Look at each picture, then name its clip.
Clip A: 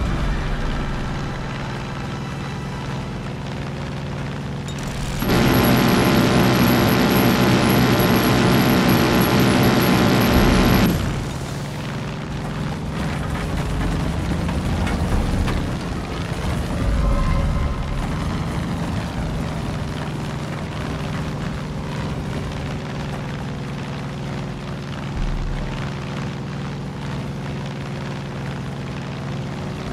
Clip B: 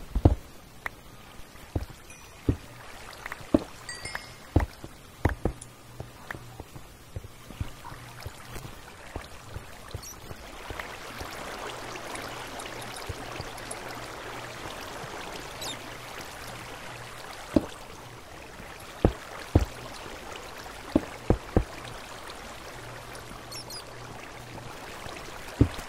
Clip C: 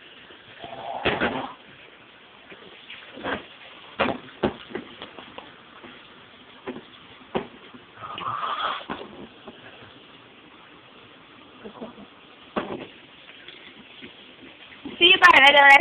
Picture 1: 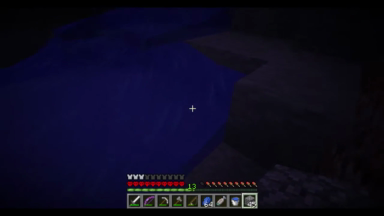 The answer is B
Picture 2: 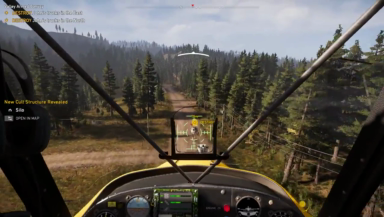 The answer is A